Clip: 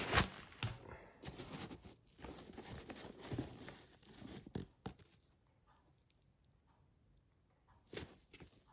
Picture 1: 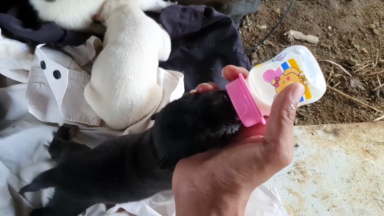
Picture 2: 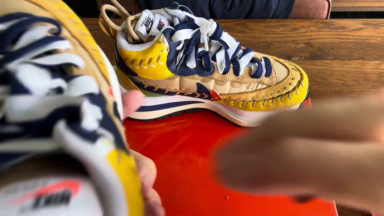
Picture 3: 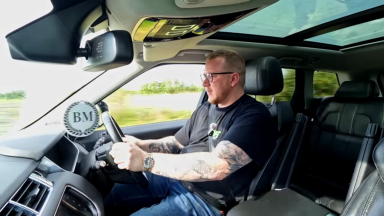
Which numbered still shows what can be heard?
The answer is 2